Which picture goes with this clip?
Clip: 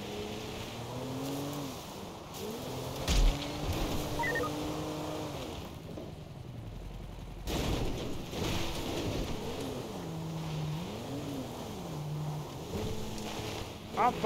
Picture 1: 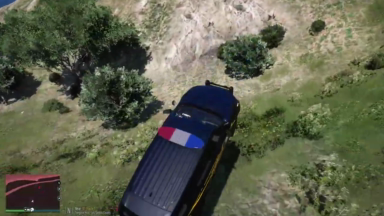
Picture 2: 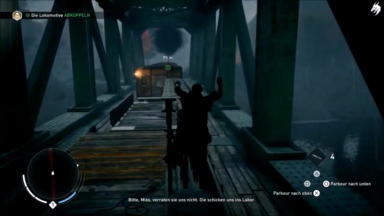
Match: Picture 1